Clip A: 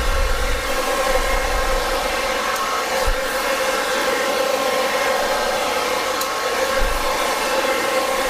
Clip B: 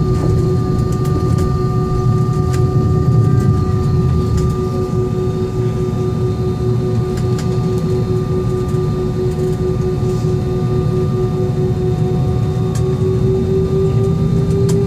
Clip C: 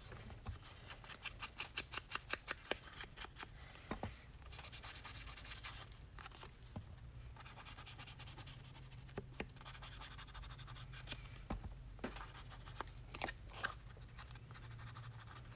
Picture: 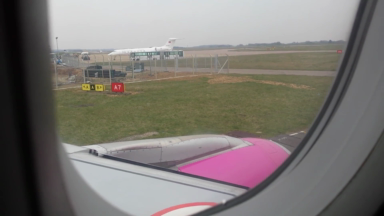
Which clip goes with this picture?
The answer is B